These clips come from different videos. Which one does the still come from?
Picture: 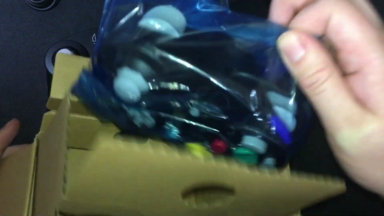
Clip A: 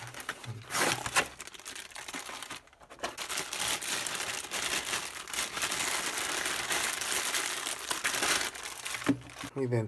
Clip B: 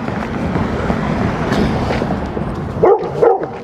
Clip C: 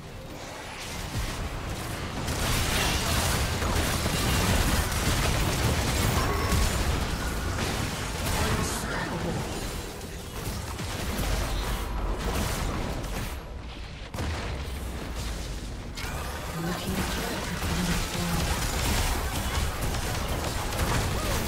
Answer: A